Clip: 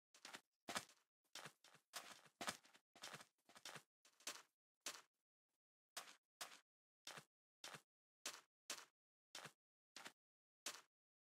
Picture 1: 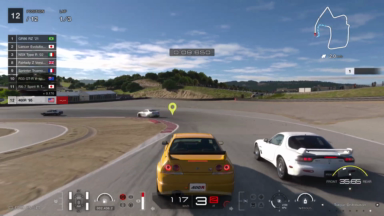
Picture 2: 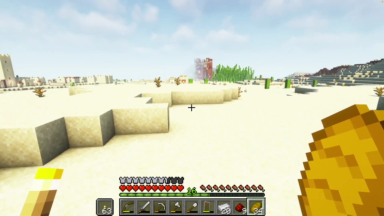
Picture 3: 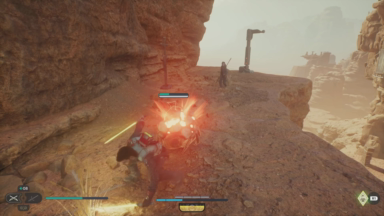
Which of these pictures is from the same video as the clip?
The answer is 2